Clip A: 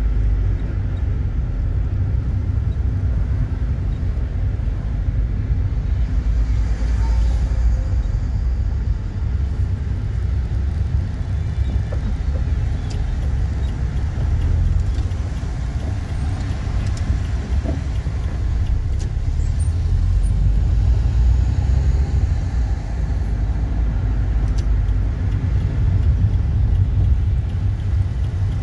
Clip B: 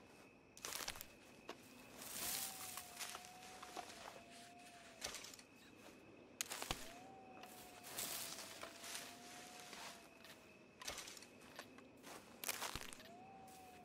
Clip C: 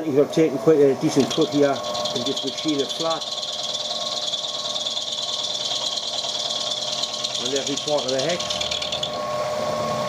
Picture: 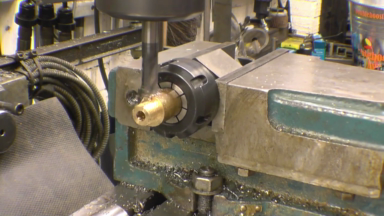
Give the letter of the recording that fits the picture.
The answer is C